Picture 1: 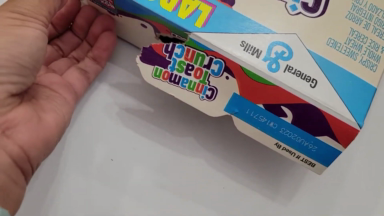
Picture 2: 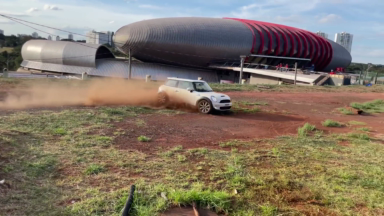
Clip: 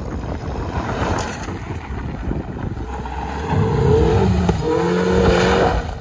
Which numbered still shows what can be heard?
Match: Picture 2